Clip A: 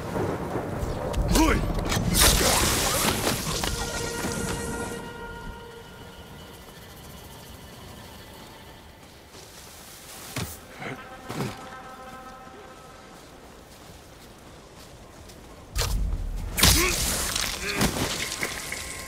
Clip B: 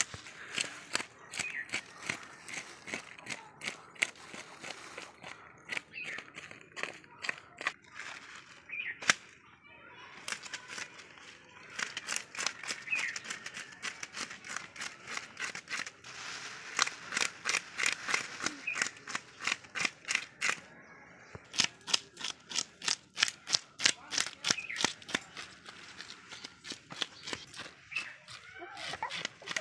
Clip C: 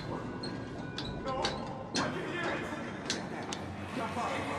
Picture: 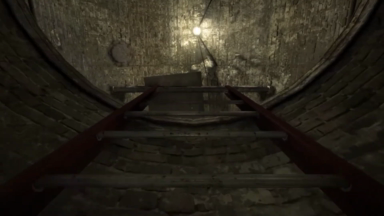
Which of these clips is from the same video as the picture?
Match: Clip C